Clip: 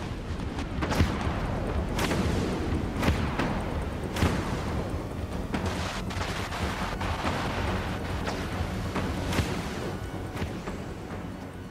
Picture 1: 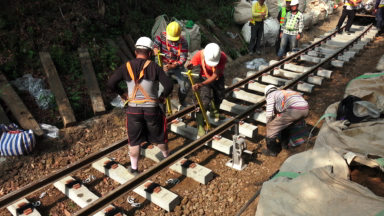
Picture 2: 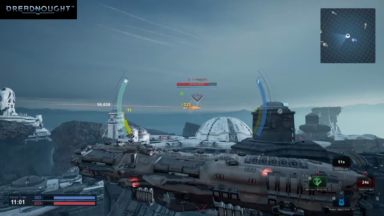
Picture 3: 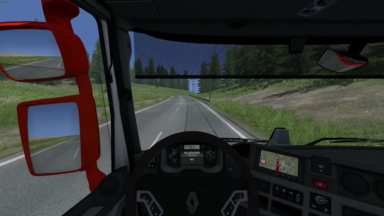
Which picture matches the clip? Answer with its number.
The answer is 2